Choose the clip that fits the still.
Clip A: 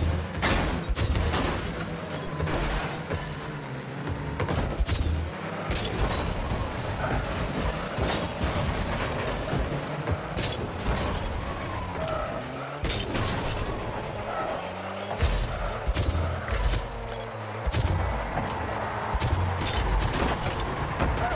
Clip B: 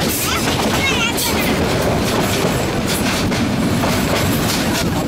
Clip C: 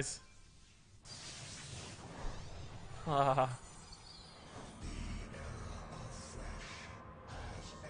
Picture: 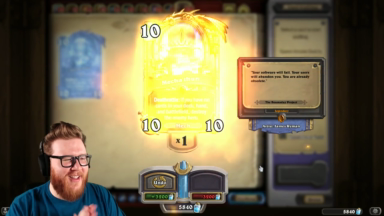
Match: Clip C